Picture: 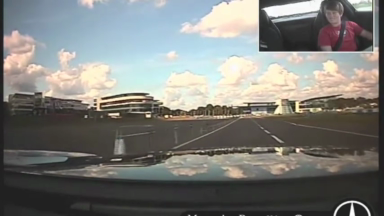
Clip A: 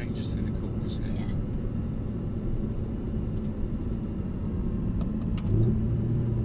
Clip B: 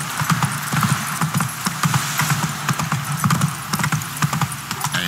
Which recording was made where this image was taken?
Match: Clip A